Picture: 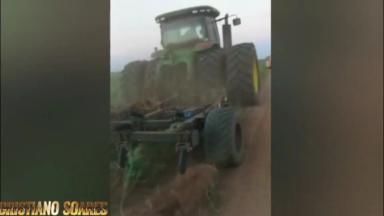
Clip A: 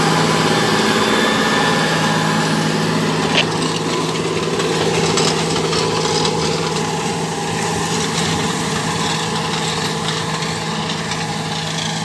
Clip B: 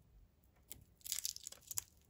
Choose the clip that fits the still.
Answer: A